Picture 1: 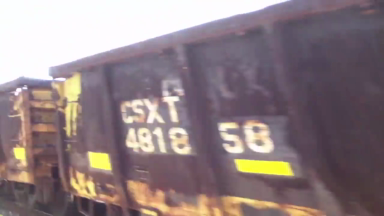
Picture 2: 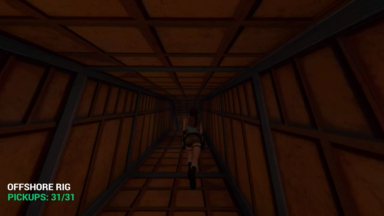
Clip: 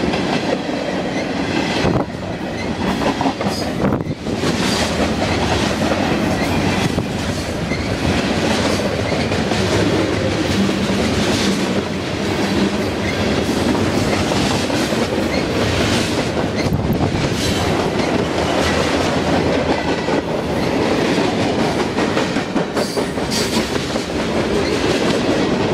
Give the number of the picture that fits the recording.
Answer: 1